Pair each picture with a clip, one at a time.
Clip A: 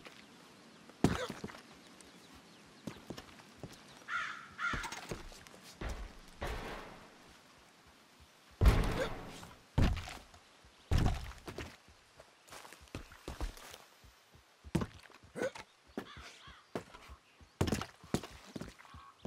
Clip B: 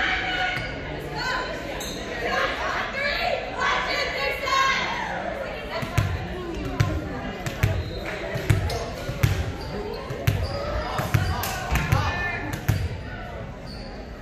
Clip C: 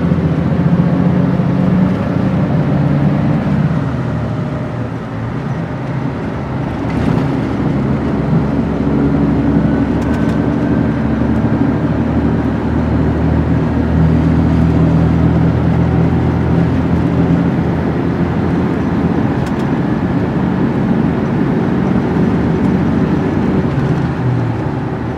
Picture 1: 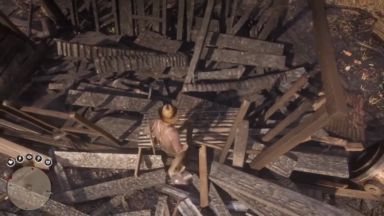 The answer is A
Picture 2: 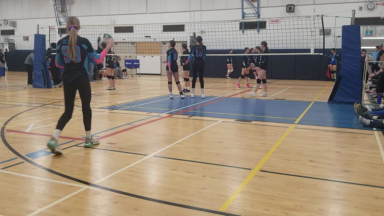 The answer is B